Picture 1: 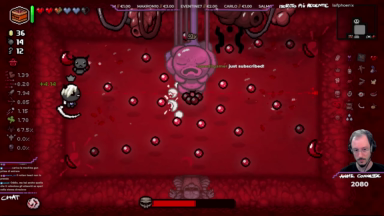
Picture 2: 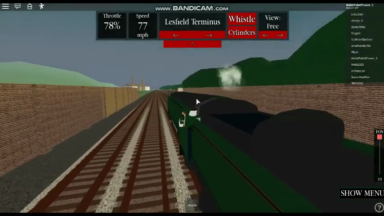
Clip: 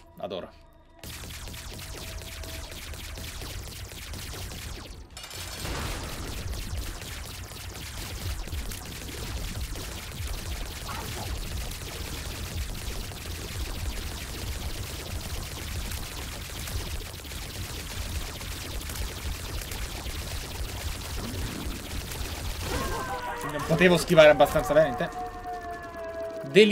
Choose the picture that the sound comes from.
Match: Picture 1